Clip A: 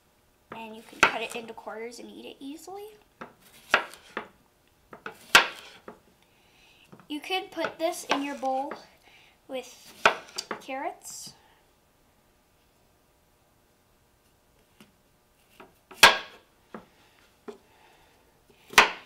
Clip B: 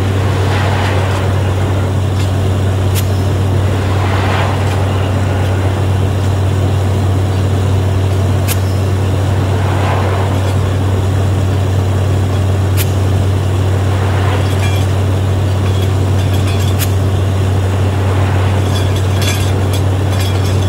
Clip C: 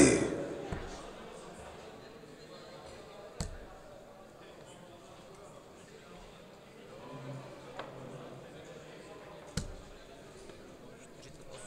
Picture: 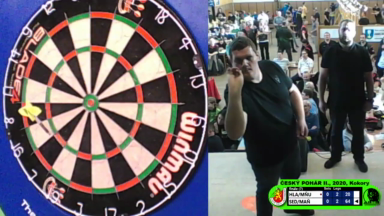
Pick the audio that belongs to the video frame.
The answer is C